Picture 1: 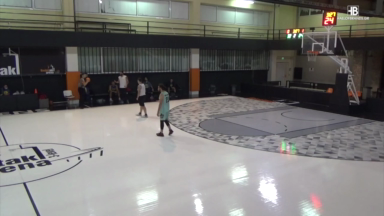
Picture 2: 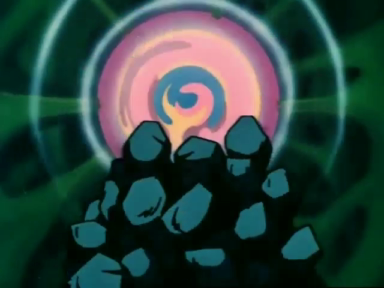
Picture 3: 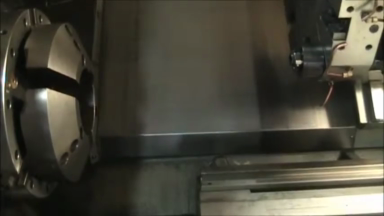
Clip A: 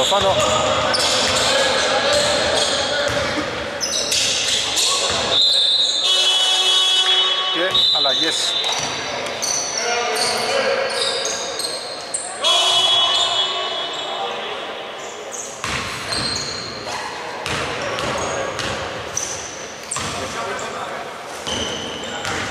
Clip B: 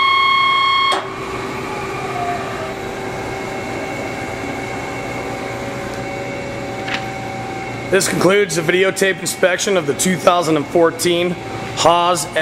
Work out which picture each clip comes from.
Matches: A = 1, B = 3